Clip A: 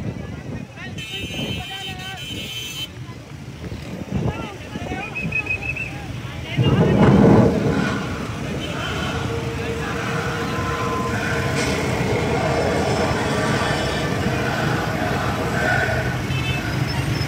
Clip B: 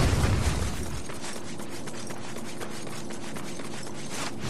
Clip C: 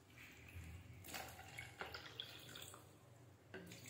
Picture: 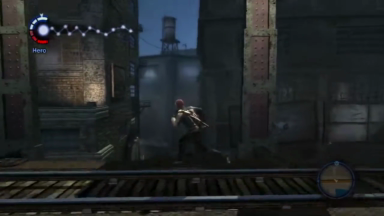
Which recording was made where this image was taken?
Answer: B